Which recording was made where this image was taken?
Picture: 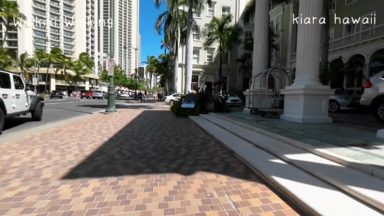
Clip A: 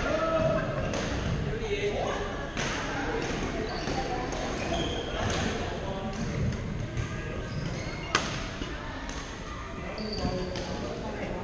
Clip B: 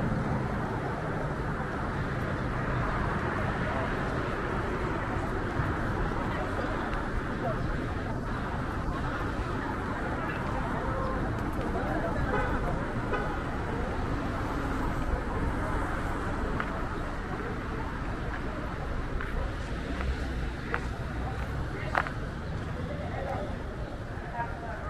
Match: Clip B